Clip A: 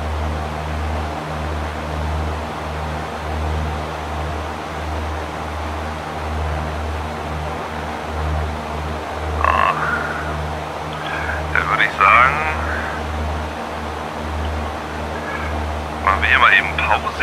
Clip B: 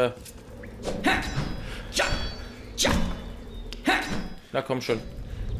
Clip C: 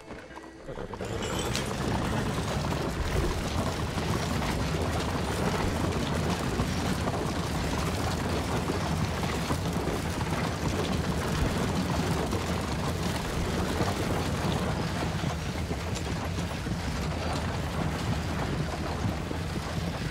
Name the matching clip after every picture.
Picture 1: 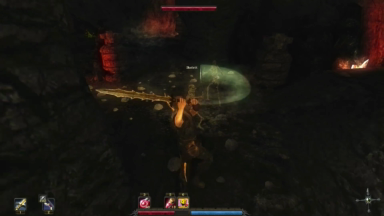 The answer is B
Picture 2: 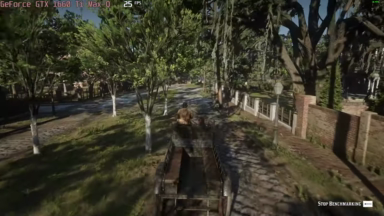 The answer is C